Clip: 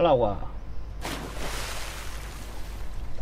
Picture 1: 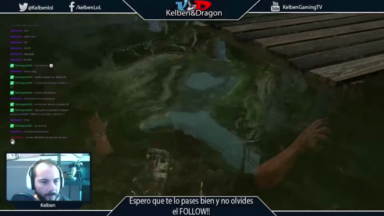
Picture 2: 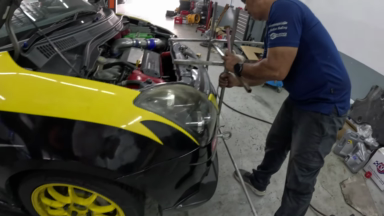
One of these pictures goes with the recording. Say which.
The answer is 1